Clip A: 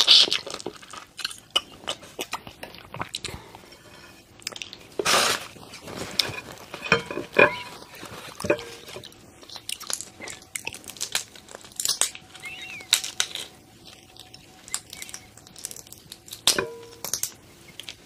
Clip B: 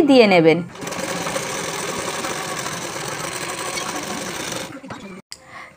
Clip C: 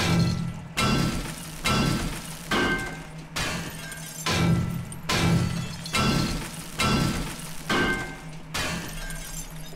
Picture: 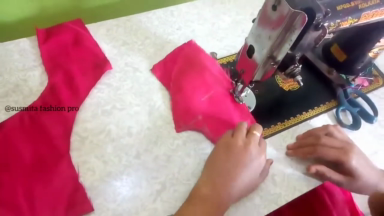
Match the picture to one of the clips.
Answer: B